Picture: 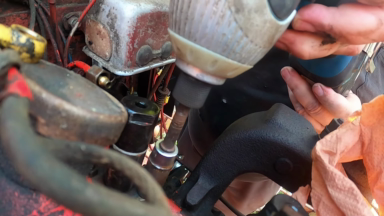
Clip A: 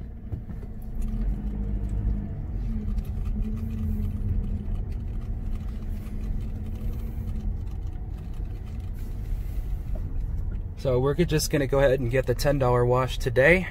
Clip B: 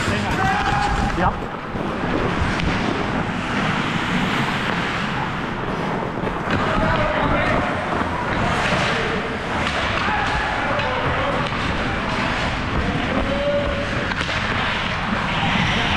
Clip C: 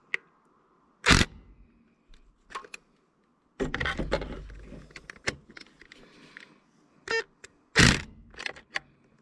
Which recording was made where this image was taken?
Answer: C